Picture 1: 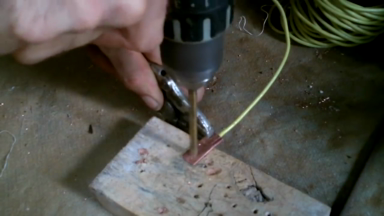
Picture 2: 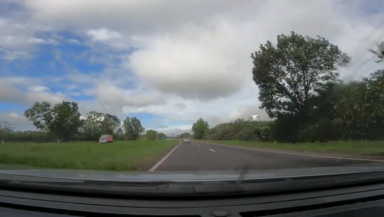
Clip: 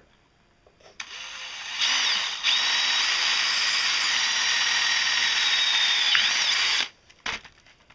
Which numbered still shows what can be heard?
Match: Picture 1